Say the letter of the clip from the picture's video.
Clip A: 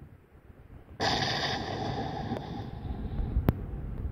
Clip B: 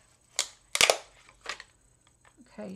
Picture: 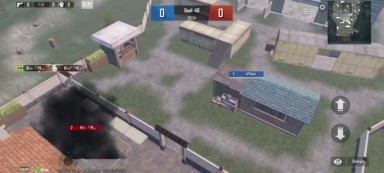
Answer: A